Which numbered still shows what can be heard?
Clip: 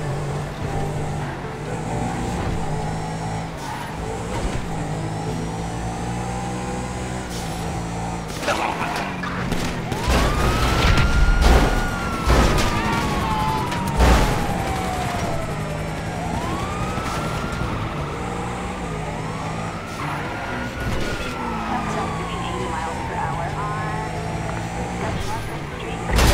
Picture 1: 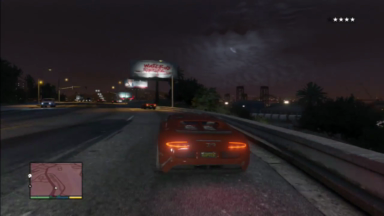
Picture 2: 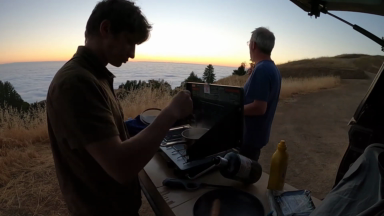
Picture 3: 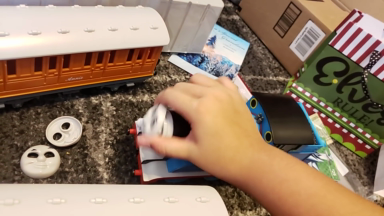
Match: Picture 1